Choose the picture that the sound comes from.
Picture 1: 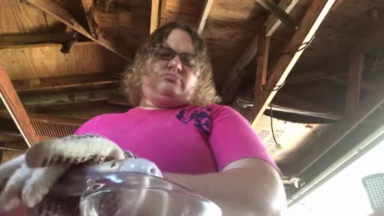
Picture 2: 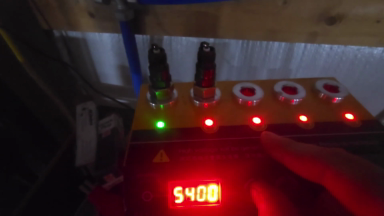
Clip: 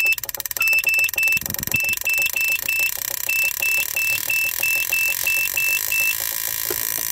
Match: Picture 2